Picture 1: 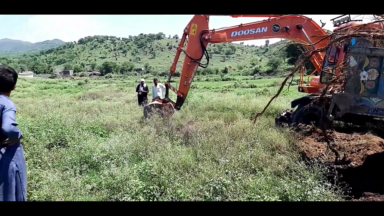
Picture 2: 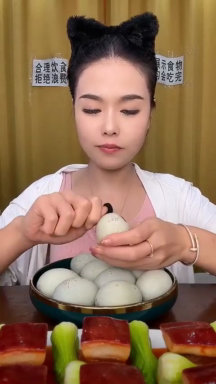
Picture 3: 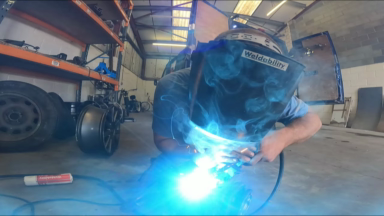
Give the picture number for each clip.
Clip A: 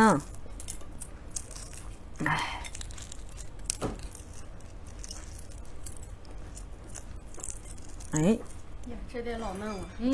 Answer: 2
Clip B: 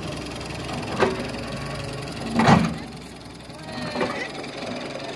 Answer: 1